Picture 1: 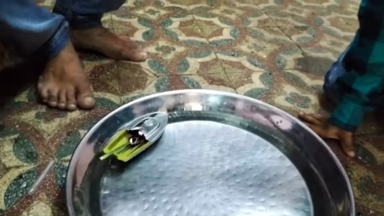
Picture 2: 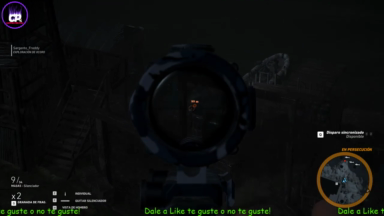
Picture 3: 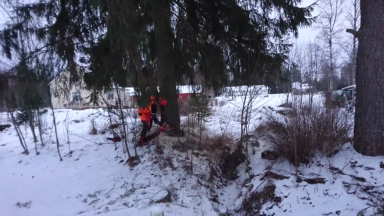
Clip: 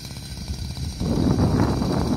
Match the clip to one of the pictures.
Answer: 3